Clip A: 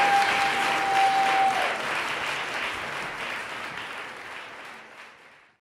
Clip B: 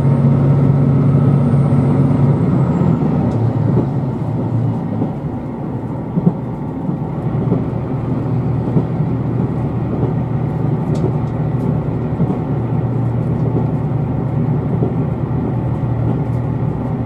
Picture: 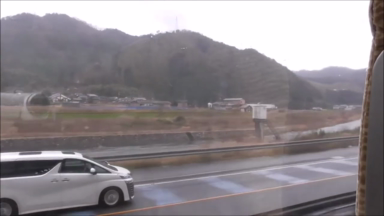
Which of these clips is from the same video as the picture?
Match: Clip B